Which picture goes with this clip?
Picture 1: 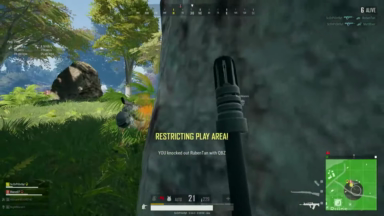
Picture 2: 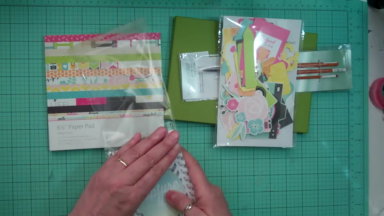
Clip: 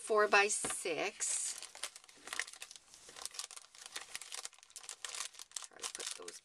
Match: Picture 2